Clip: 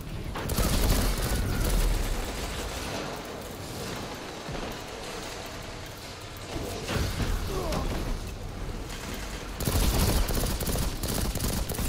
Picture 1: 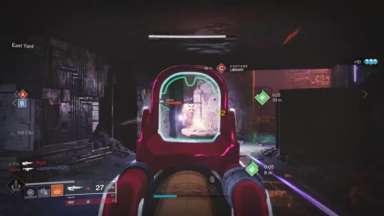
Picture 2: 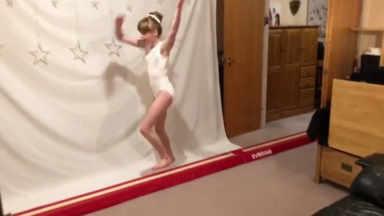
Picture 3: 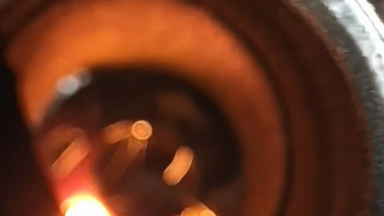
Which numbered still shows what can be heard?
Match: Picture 1